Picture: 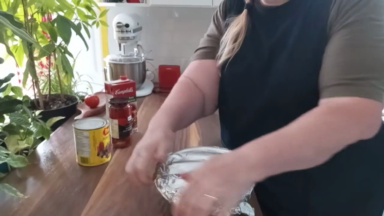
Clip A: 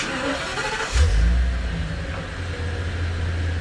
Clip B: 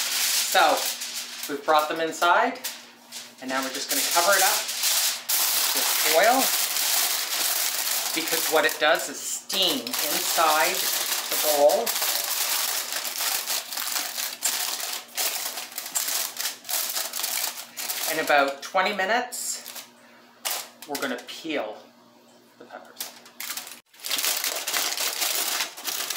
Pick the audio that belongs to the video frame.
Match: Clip B